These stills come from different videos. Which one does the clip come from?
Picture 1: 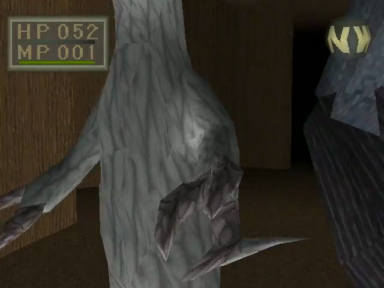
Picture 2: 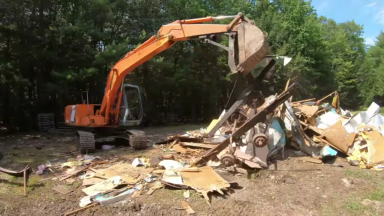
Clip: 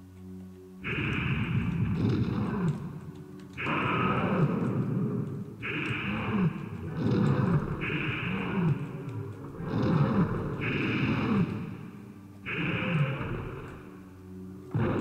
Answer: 1